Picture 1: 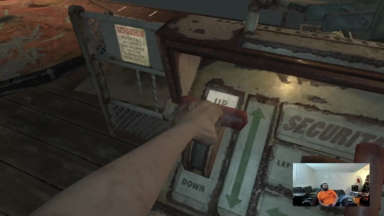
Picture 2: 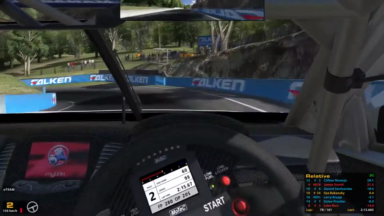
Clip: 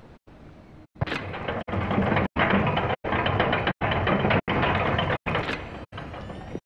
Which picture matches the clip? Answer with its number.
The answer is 1